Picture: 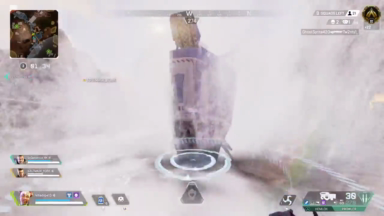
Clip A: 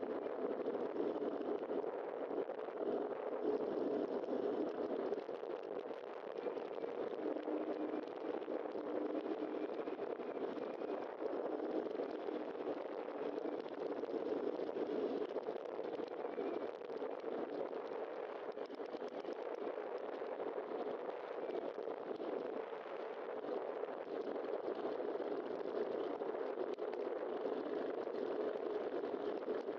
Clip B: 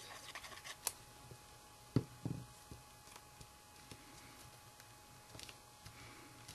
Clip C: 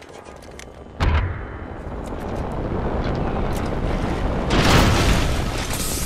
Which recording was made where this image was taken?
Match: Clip C